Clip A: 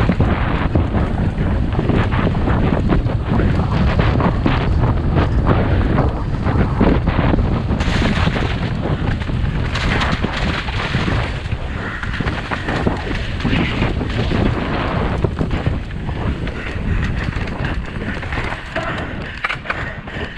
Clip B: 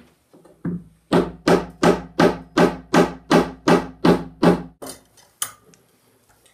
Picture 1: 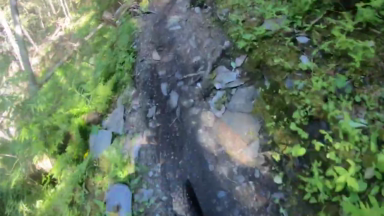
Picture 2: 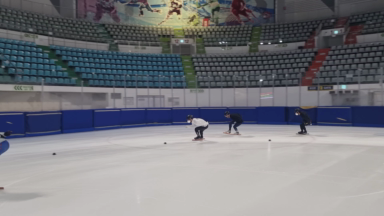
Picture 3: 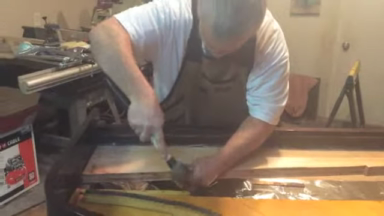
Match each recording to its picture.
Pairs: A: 1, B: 3